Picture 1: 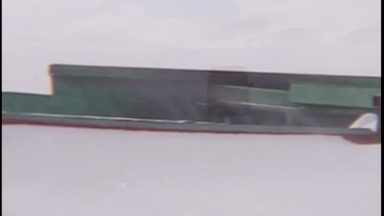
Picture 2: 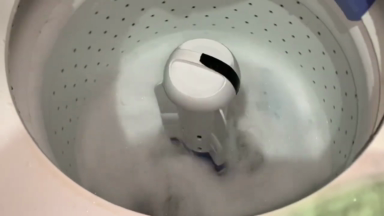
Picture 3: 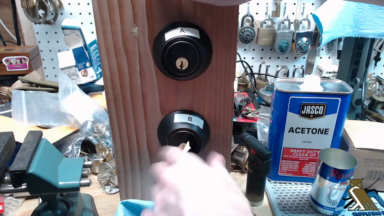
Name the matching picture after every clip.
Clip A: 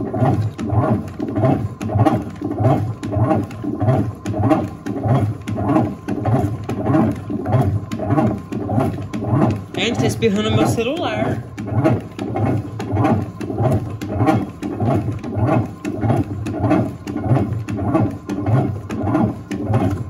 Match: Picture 2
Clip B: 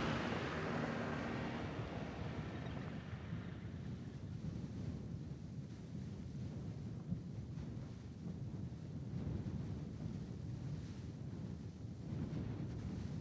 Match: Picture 1